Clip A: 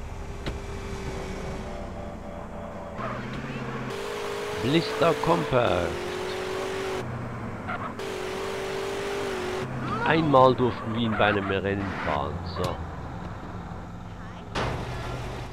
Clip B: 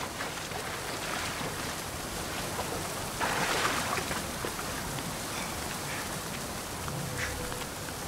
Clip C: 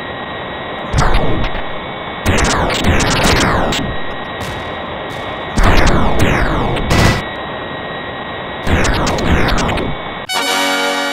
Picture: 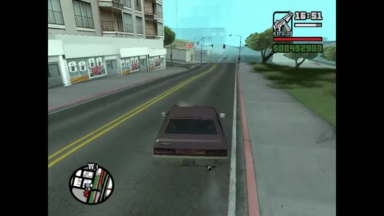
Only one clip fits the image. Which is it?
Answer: A